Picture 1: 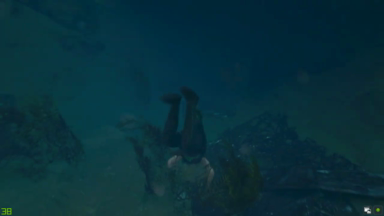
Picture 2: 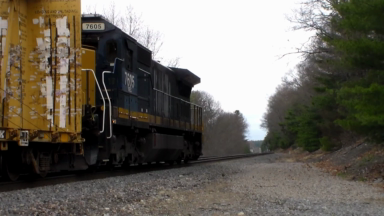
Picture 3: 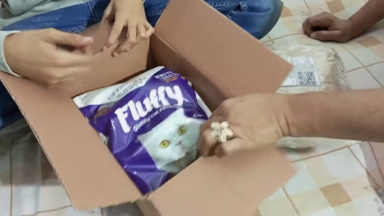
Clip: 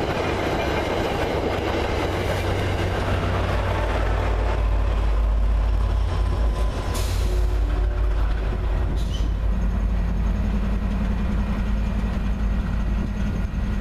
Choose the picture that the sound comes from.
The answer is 2